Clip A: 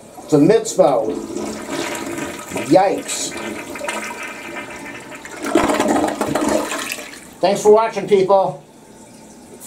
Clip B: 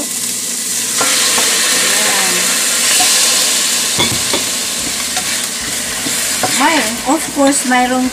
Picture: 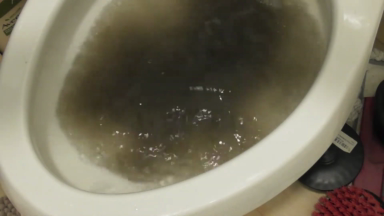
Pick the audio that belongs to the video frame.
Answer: A